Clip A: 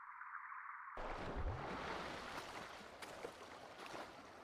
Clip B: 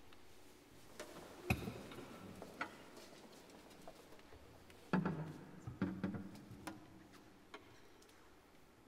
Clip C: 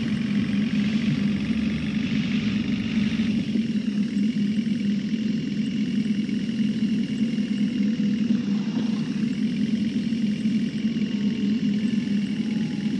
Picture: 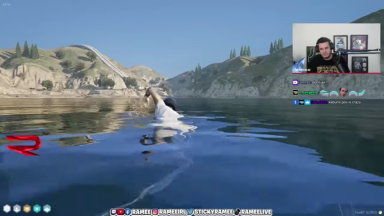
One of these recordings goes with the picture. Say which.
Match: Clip A